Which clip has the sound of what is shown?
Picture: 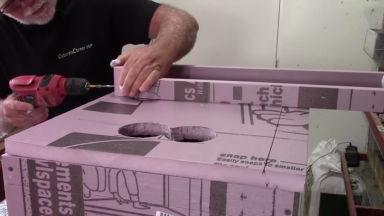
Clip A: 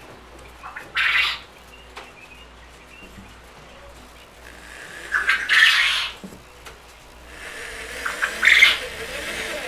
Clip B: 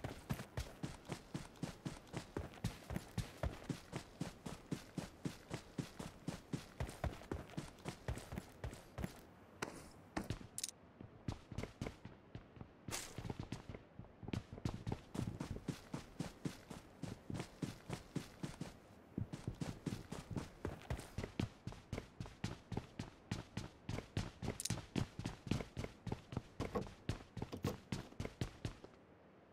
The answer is A